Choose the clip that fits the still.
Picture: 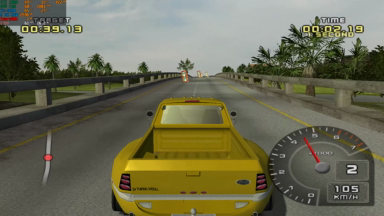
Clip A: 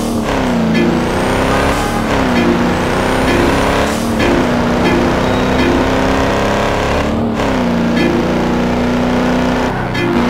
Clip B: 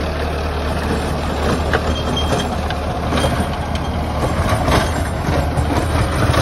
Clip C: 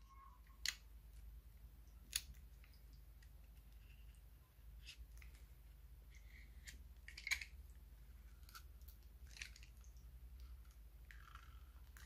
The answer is A